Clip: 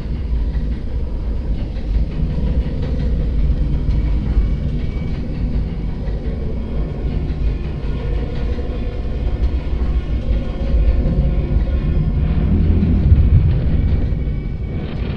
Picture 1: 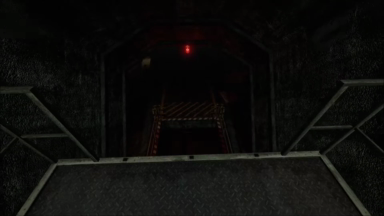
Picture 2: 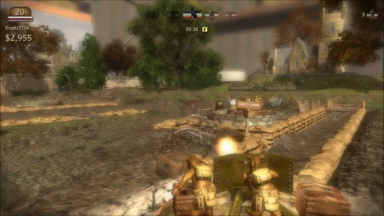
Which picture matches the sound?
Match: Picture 1